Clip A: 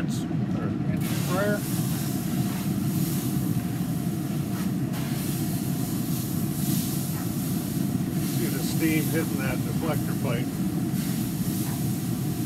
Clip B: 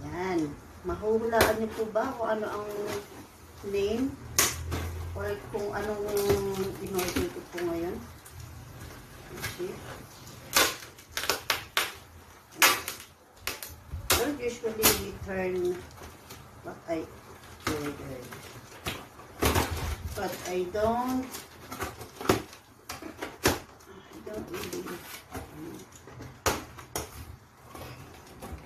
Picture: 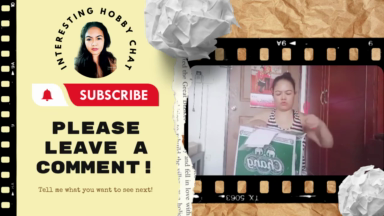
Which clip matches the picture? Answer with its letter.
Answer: B